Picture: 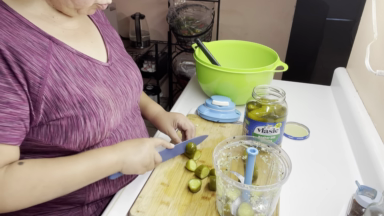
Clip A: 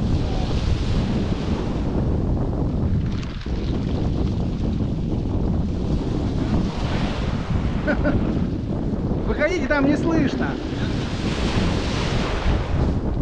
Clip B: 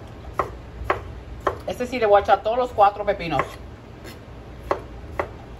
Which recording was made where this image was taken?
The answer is B